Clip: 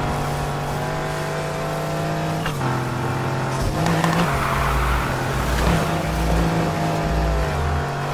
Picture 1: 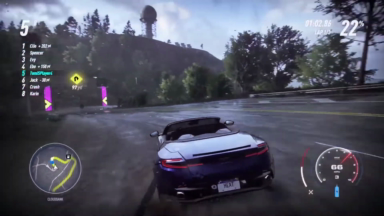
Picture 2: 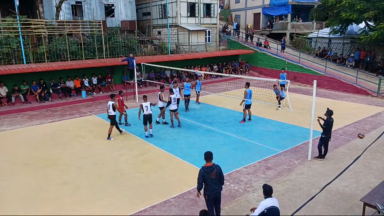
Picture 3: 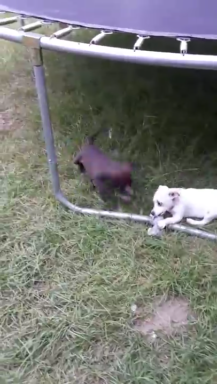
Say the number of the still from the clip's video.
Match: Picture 1